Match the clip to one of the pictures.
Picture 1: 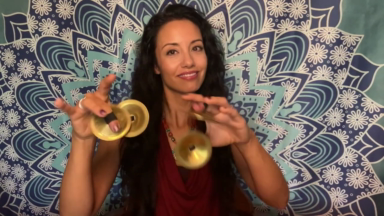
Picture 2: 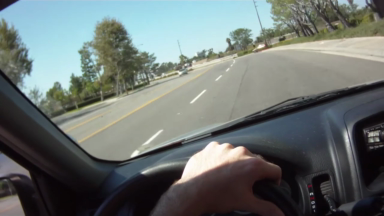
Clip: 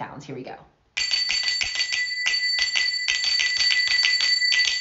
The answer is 1